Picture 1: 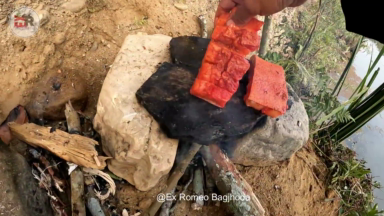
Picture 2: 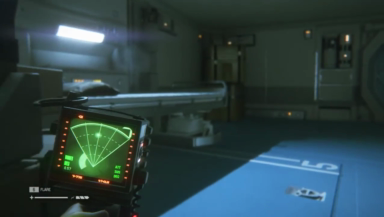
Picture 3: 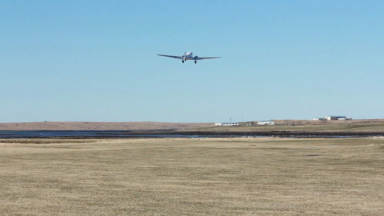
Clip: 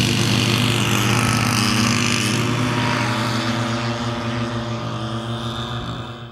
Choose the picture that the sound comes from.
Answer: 3